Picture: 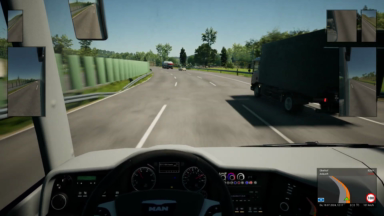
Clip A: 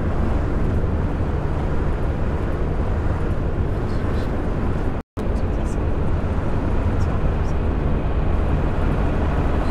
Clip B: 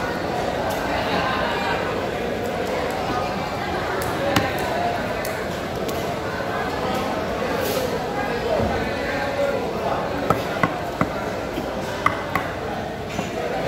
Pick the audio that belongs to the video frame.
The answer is A